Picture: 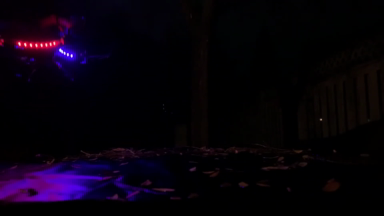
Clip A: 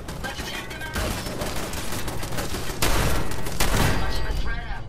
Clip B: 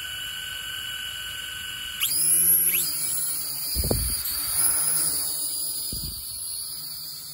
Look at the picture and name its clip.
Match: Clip B